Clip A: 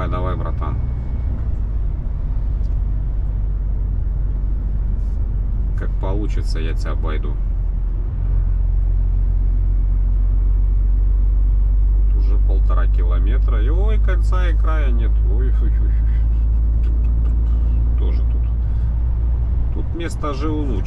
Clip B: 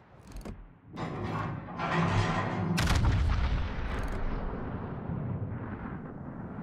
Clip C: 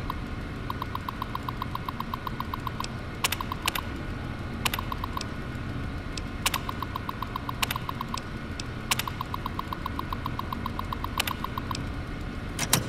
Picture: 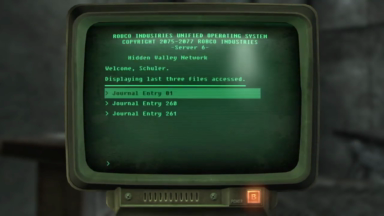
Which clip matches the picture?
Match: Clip C